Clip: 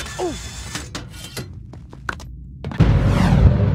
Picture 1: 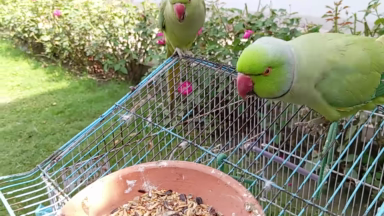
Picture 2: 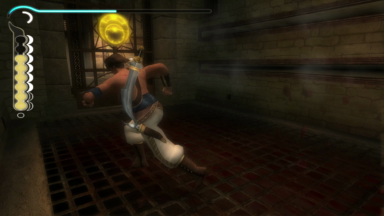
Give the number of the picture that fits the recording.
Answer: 2